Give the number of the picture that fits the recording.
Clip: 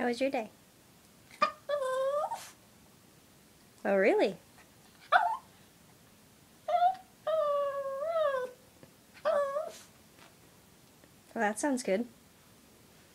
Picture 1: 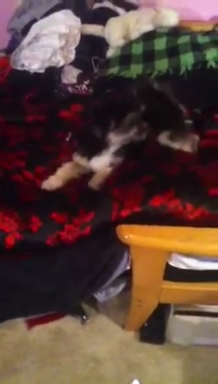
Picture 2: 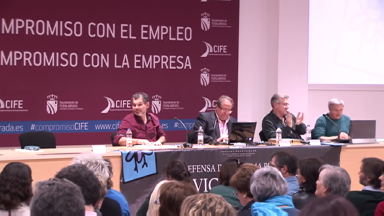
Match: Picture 1